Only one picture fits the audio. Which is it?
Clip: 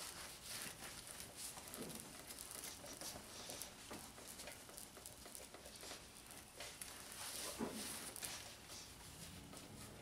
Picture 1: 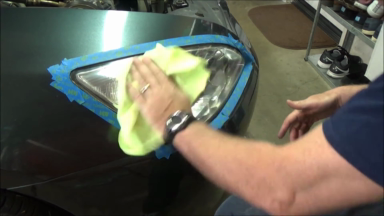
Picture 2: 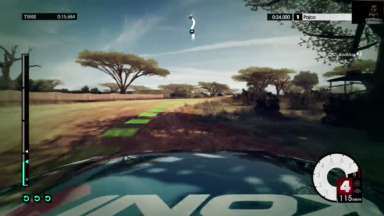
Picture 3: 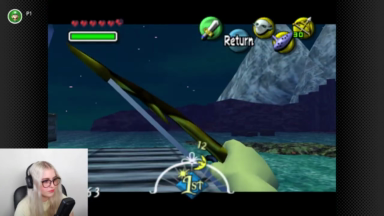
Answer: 1